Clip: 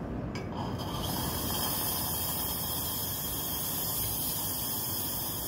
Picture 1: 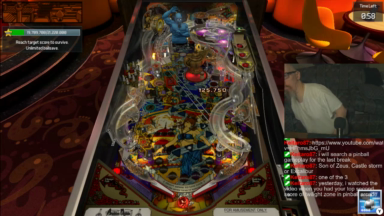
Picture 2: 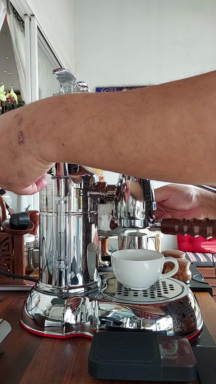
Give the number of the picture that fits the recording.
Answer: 2